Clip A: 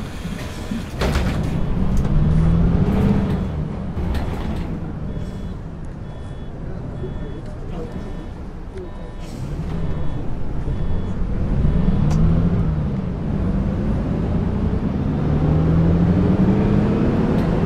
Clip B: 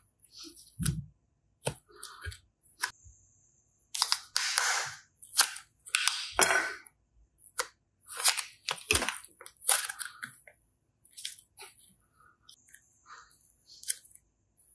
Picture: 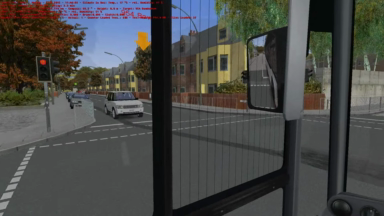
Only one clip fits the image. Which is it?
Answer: A